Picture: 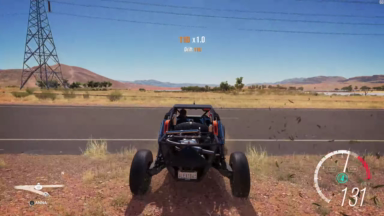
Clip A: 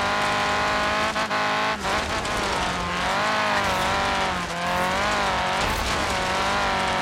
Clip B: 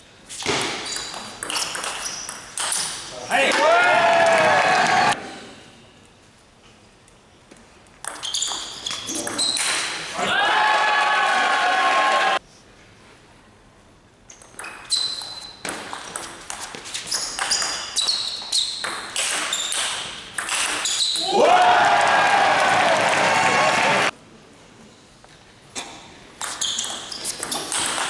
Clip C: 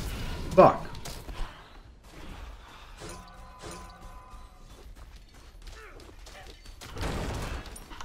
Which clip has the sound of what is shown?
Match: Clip A